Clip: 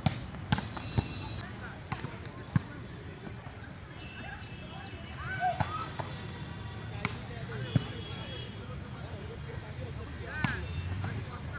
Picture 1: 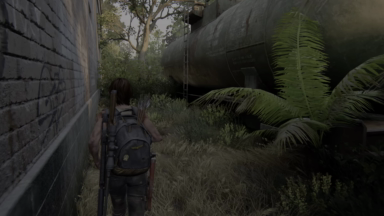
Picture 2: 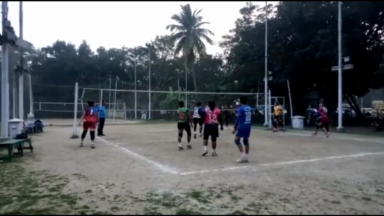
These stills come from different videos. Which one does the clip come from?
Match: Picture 2